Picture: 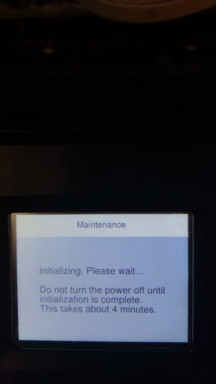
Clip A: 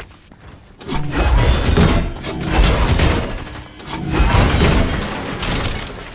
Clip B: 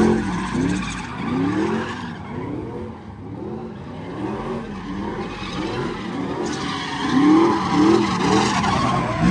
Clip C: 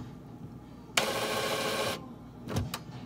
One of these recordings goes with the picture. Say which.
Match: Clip C